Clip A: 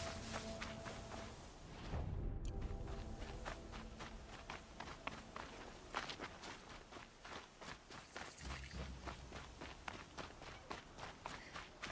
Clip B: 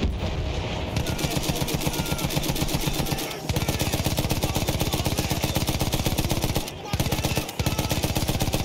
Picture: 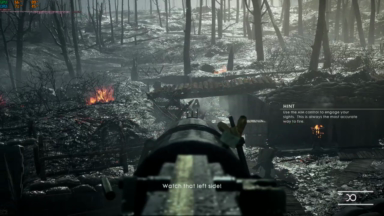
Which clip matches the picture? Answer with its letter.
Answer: B